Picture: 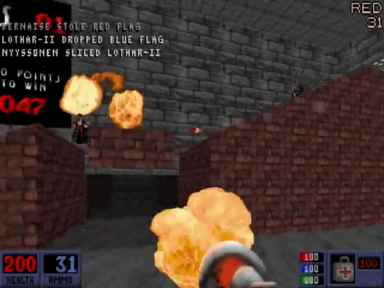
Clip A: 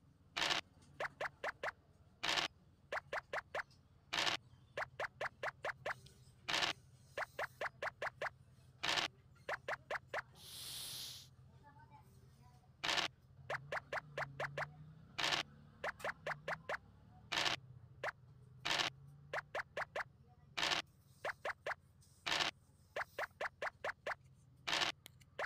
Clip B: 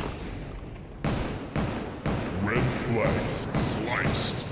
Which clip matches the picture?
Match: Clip B